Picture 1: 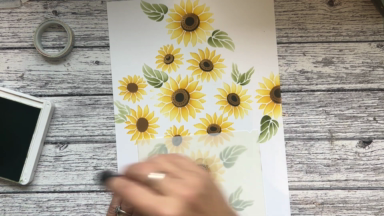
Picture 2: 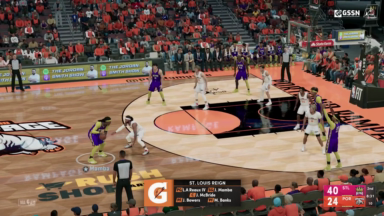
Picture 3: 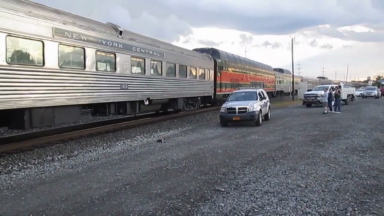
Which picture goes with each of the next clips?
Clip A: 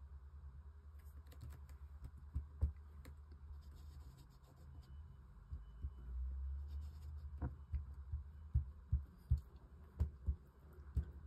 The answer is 1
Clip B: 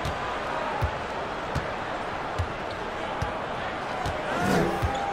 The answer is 2